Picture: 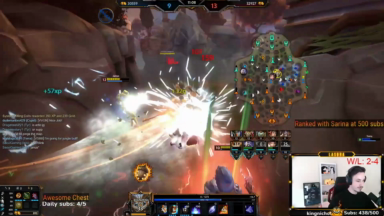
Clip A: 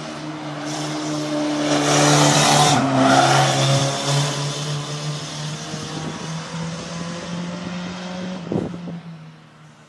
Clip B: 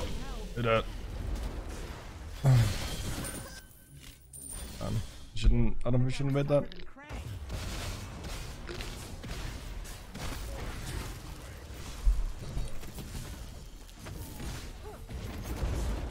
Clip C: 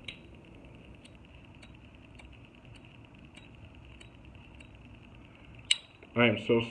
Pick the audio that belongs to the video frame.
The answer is B